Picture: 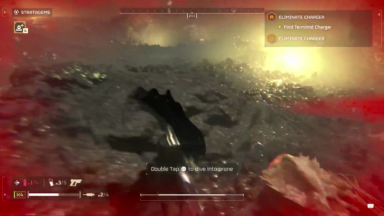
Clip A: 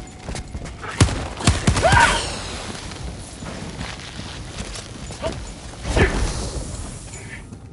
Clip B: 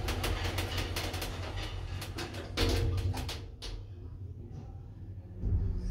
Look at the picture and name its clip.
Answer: A